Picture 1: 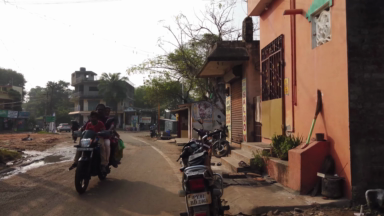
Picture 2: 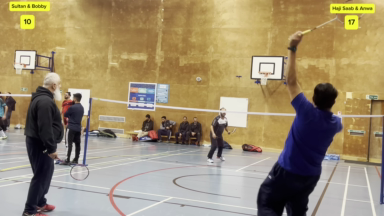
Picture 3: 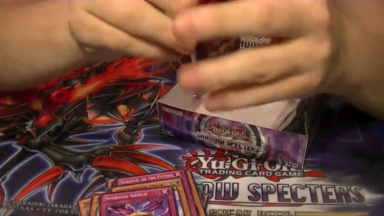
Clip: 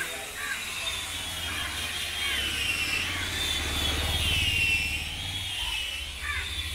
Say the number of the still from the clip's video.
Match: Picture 1